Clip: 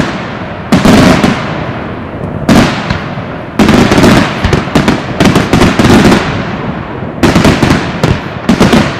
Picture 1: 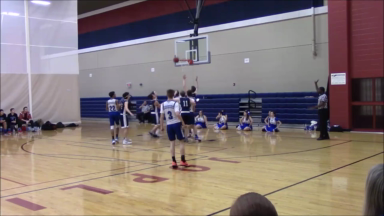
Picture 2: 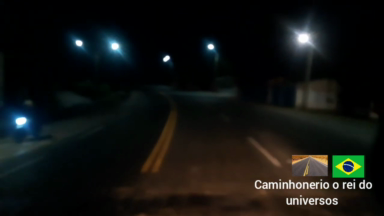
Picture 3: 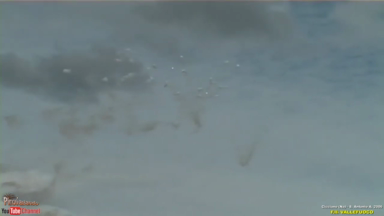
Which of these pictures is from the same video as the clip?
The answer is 3